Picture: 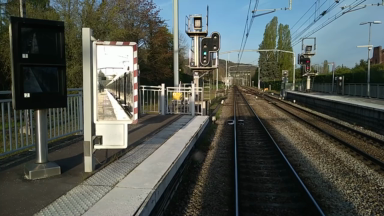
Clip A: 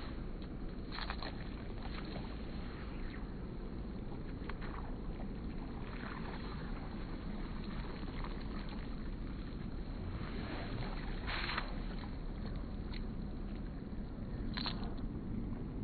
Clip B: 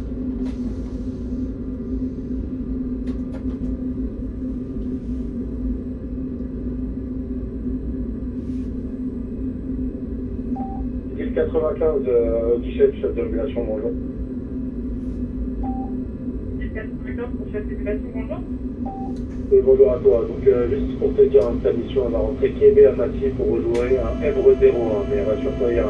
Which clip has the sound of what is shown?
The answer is B